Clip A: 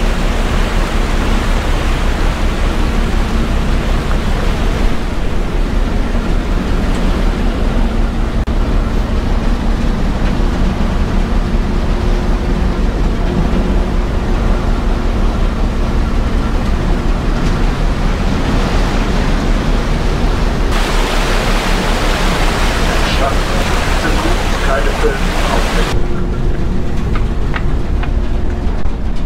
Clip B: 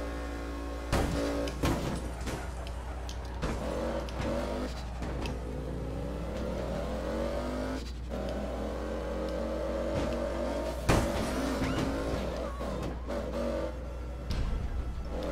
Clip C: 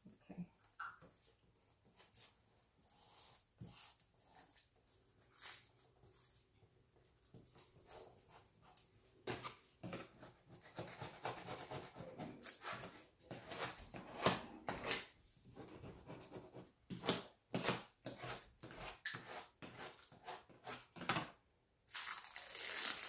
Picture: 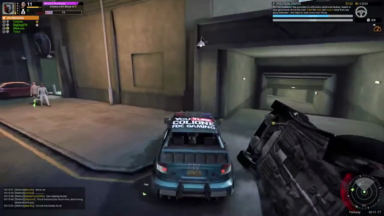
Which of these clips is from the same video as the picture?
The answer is B